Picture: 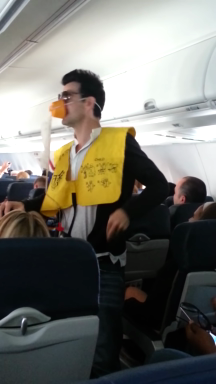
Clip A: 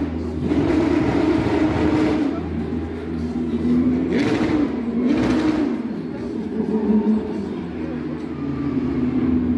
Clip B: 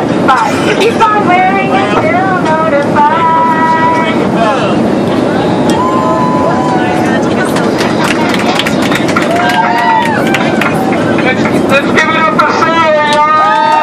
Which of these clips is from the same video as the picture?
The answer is B